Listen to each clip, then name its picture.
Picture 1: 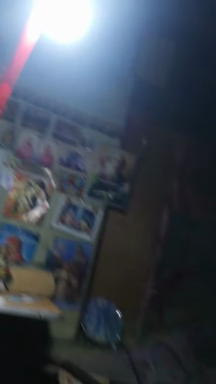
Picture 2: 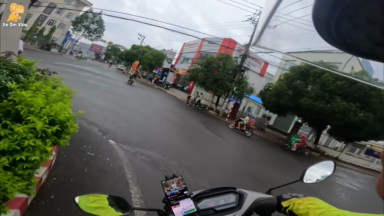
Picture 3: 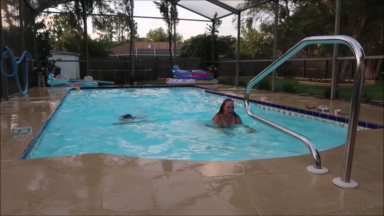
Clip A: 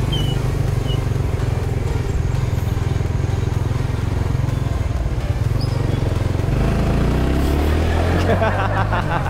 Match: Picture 2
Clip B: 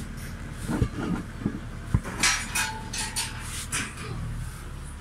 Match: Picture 1